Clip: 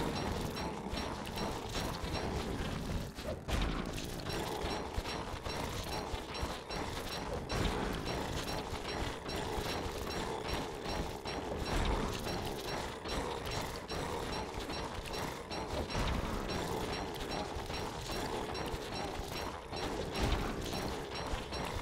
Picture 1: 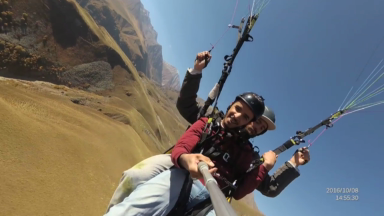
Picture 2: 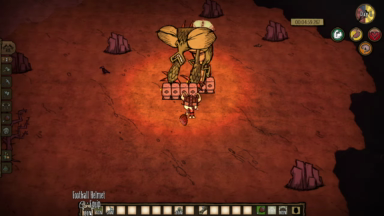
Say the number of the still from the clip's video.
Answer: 2